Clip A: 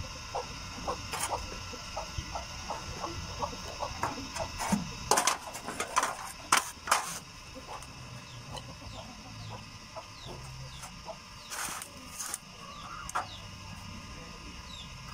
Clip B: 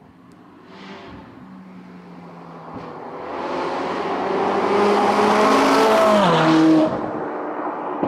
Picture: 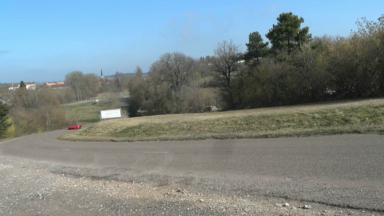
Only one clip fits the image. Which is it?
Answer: B